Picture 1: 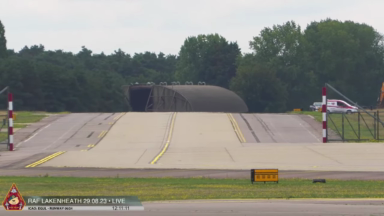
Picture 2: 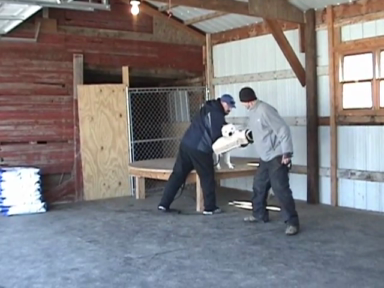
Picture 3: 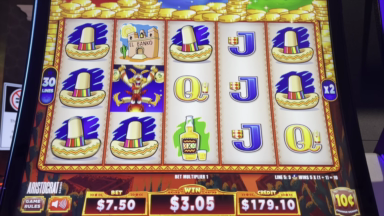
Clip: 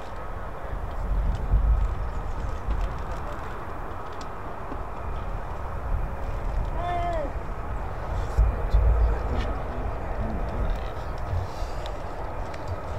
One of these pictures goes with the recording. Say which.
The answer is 1